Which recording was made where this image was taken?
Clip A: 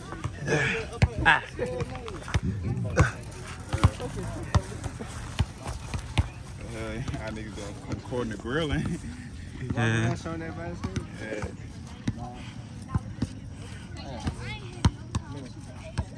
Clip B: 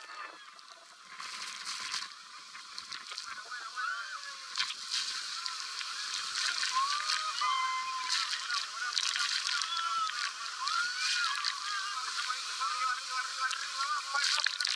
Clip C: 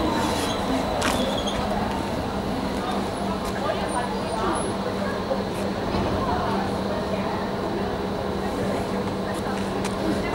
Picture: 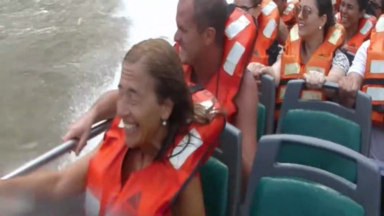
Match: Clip B